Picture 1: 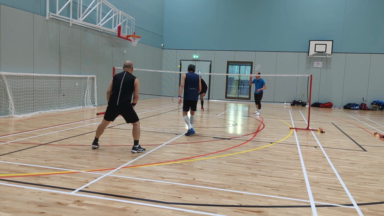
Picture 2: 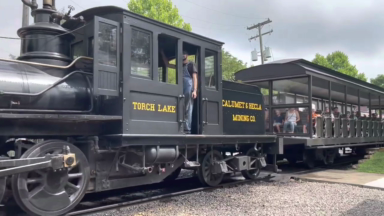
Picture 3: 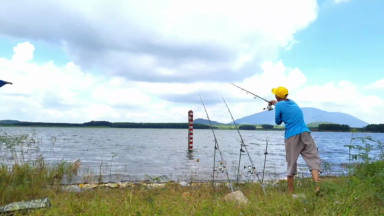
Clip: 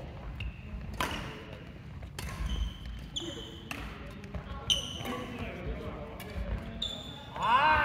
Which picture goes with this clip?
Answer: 1